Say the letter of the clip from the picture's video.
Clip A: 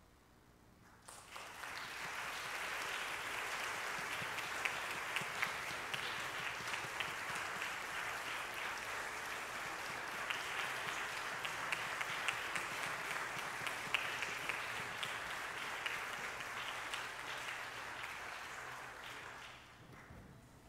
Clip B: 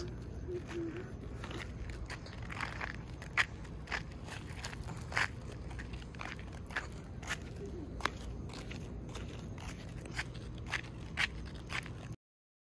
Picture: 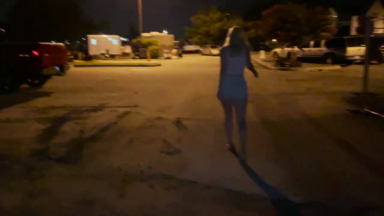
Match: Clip B